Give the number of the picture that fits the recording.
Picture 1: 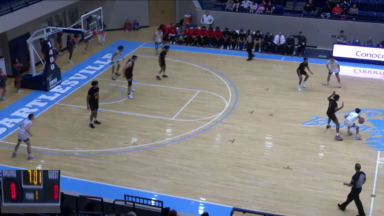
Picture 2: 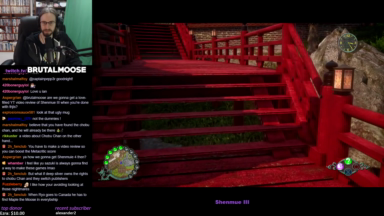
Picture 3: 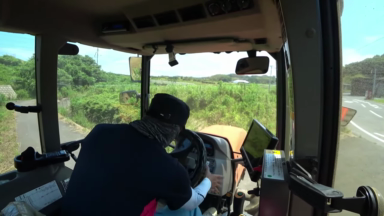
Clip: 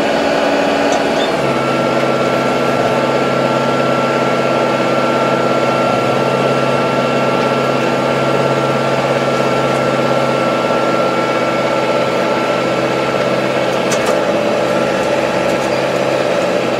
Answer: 3